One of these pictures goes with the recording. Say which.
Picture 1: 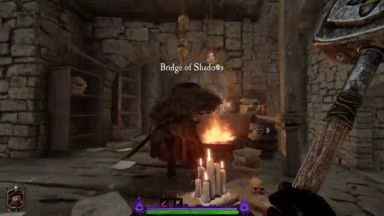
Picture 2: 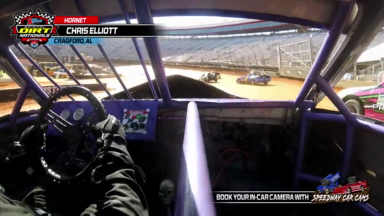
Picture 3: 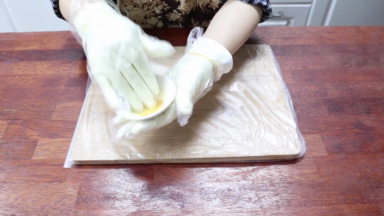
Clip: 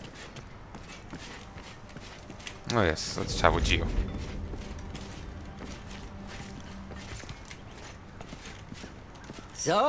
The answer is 1